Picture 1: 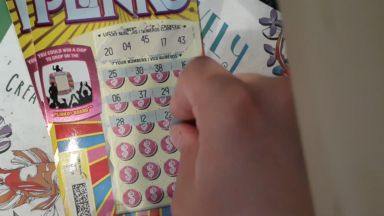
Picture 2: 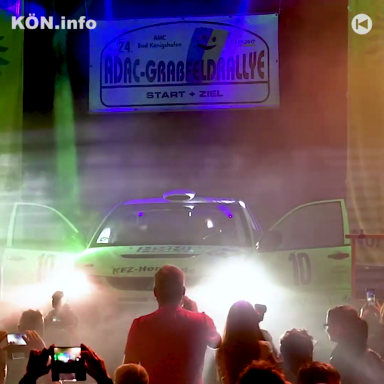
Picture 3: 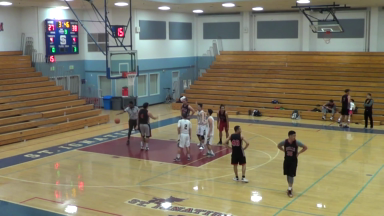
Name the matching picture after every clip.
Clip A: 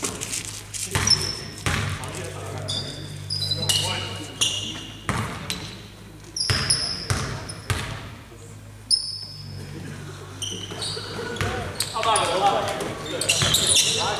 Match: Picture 3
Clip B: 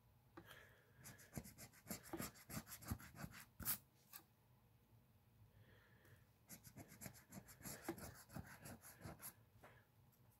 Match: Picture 1